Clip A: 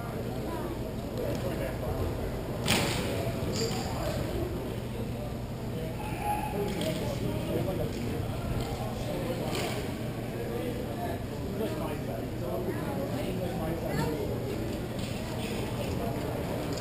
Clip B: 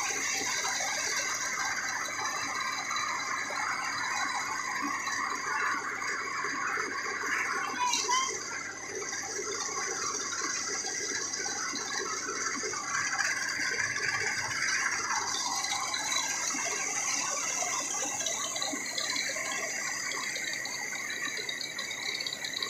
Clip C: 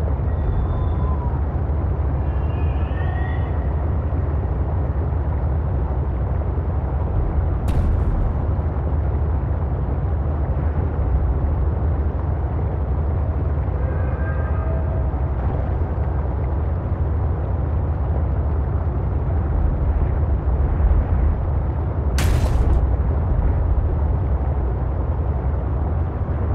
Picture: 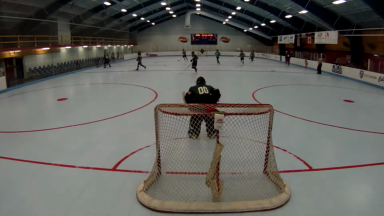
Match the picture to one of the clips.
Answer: A